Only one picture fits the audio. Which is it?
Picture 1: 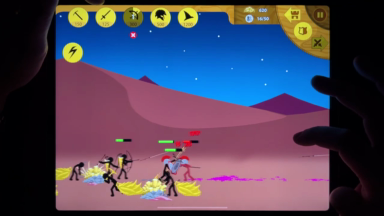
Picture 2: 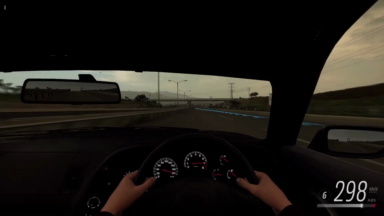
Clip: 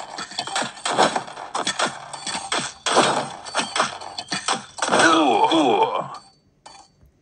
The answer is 1